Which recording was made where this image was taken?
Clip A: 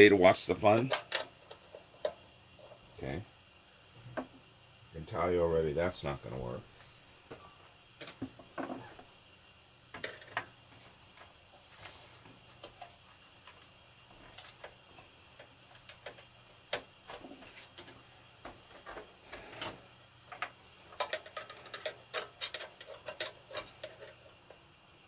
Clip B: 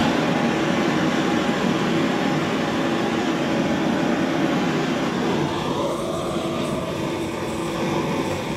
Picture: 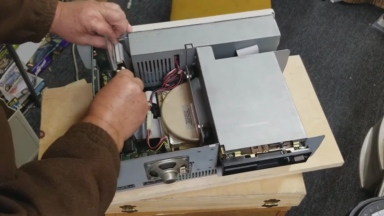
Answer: A